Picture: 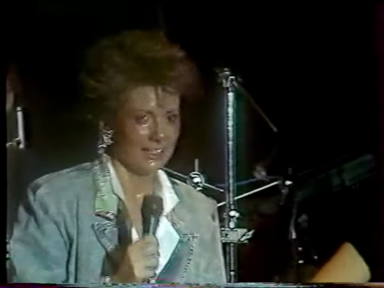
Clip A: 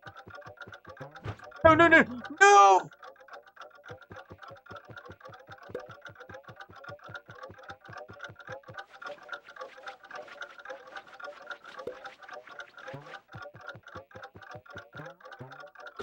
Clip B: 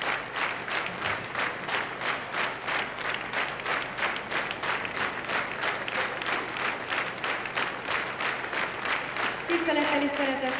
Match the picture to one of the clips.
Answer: B